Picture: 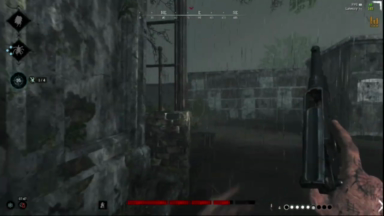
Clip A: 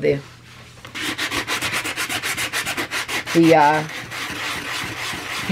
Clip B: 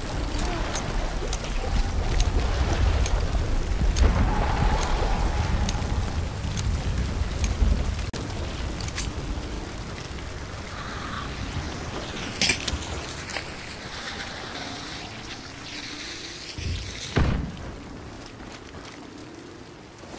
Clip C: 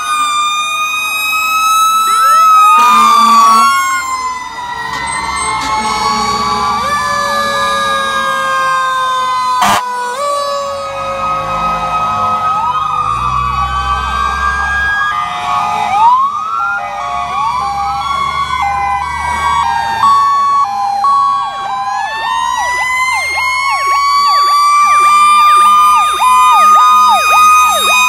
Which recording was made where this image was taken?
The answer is B